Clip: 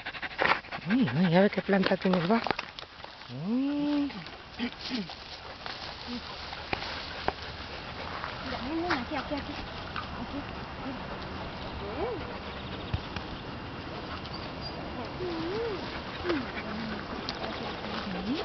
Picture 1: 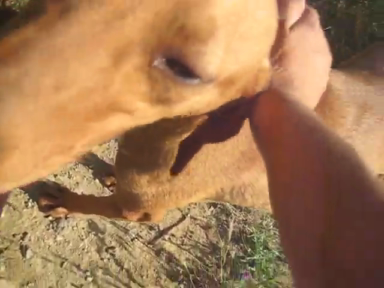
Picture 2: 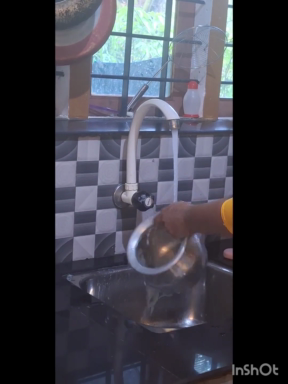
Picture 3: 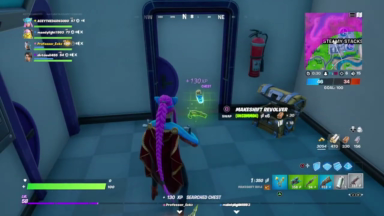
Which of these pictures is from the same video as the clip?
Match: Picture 1